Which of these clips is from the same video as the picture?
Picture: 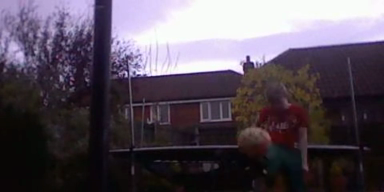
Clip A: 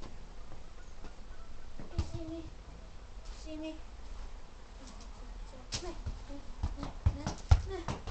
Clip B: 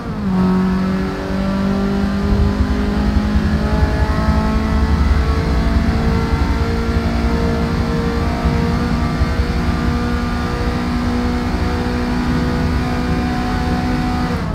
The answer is A